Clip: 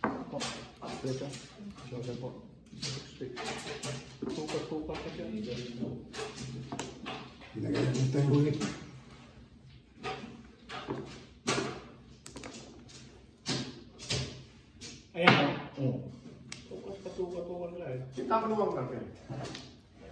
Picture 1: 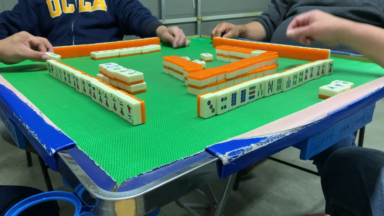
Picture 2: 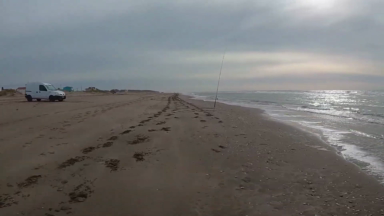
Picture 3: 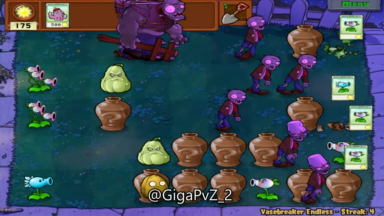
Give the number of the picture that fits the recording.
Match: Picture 1